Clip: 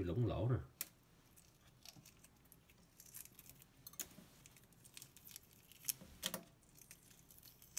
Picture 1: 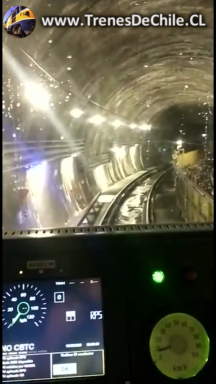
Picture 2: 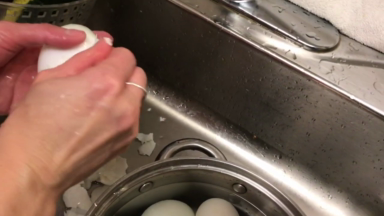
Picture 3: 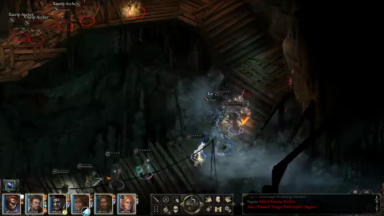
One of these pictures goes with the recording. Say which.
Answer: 2